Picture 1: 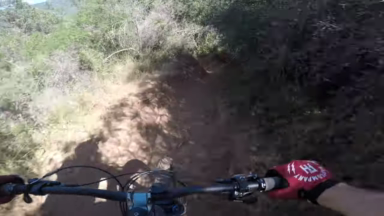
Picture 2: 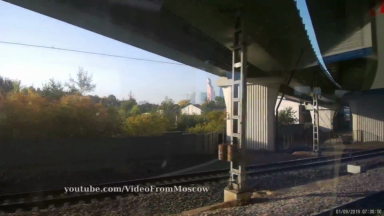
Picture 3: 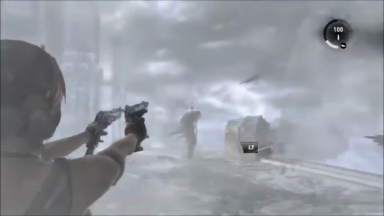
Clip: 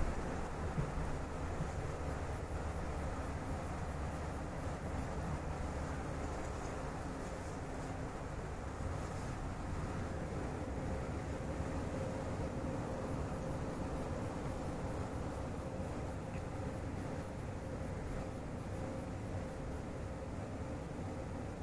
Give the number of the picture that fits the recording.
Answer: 2